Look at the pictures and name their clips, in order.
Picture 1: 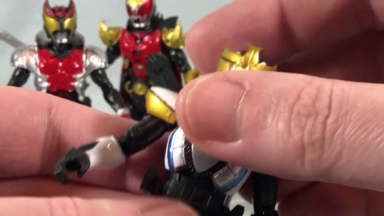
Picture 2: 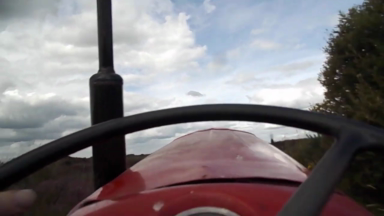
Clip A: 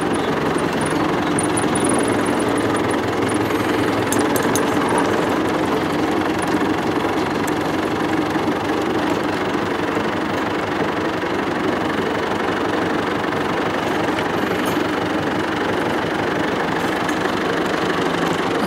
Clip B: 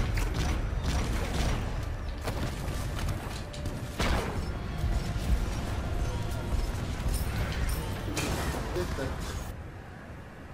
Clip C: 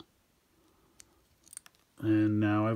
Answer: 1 C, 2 A